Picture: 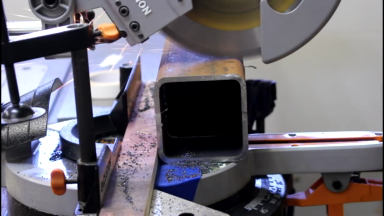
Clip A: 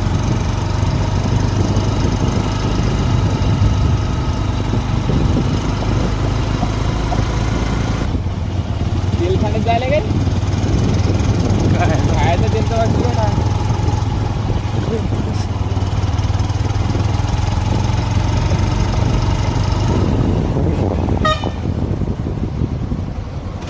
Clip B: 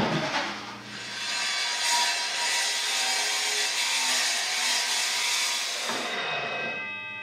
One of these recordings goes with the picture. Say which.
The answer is B